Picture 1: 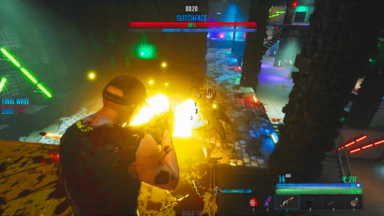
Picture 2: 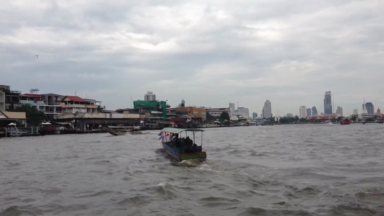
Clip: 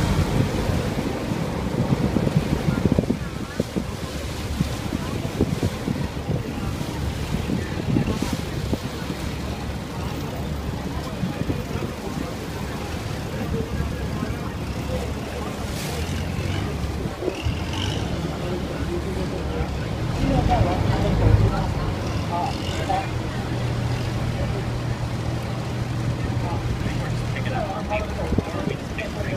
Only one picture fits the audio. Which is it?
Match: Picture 2